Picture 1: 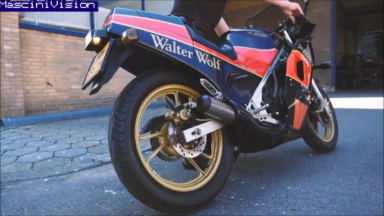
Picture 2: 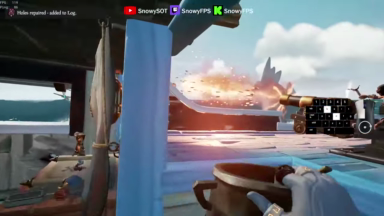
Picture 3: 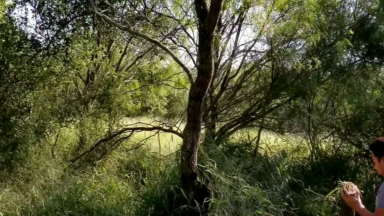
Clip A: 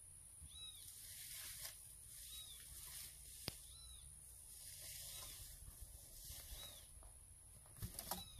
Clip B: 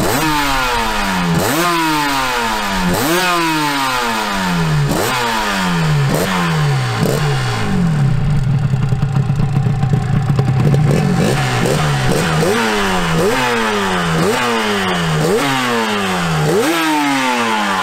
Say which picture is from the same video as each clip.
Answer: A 3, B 1